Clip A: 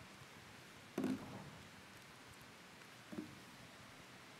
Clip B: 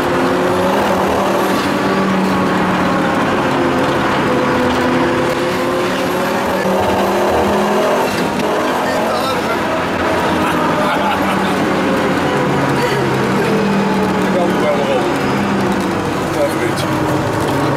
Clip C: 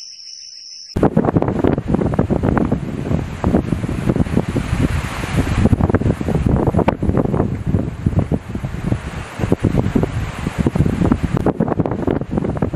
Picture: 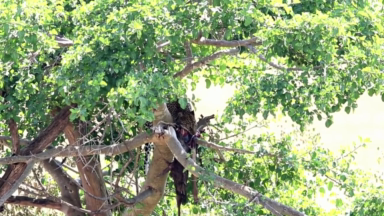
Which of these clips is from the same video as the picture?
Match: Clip C